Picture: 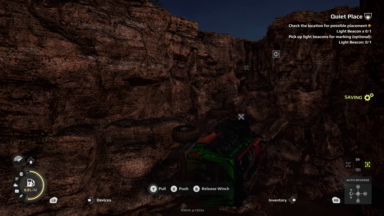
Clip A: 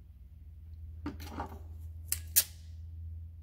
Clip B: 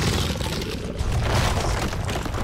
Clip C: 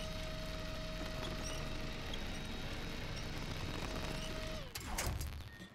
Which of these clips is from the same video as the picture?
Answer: C